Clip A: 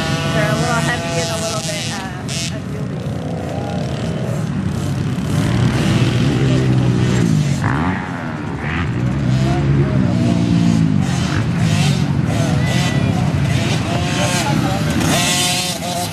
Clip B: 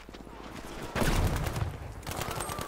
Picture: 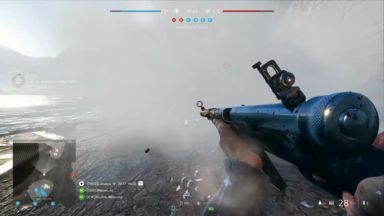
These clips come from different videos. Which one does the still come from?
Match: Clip B